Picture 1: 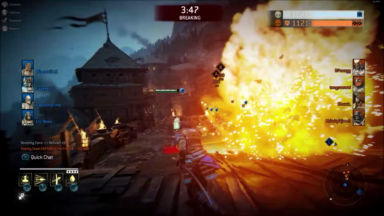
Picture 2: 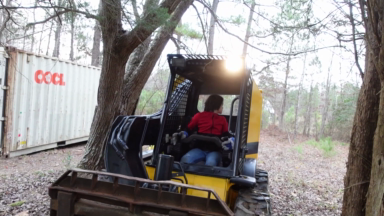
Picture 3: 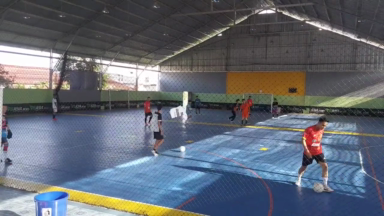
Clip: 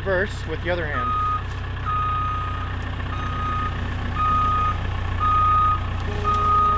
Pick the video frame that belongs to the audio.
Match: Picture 2